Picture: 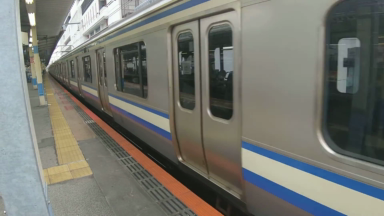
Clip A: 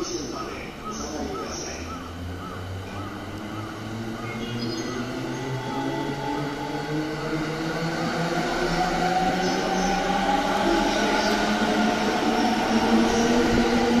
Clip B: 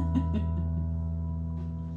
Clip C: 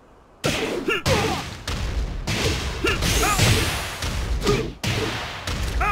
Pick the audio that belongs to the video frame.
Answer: A